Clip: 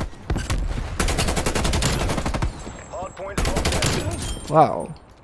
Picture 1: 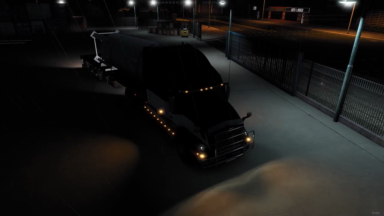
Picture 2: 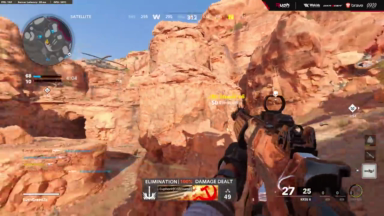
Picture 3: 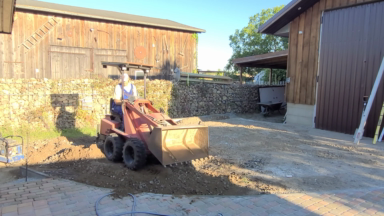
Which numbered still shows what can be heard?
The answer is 2